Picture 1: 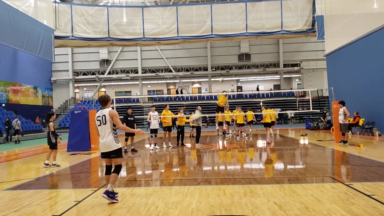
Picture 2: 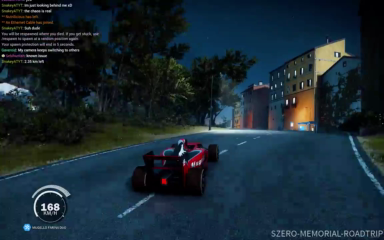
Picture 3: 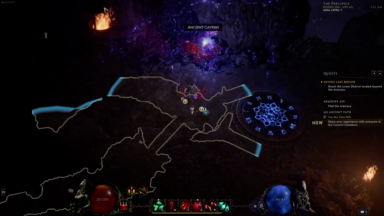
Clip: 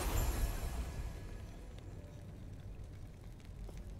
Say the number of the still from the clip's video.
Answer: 3